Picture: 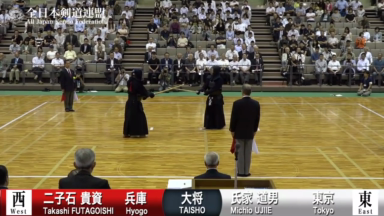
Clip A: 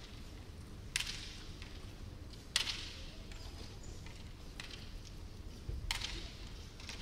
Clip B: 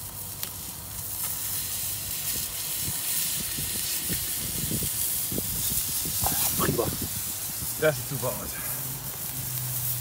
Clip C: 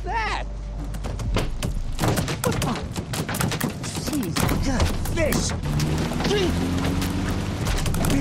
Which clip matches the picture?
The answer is A